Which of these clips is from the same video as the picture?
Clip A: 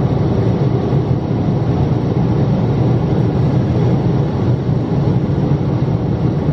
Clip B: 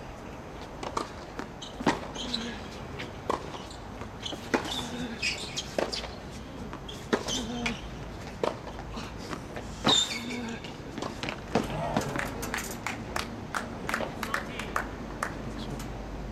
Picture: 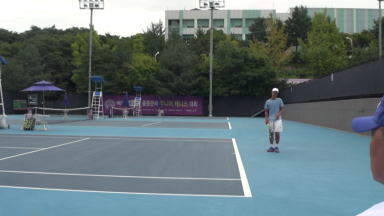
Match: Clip B